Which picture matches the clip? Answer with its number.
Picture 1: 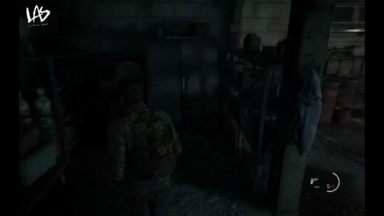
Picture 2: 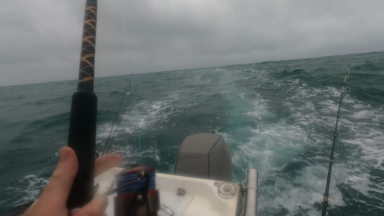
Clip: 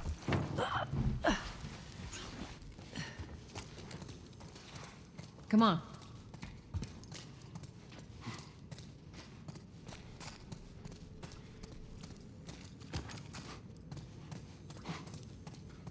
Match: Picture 1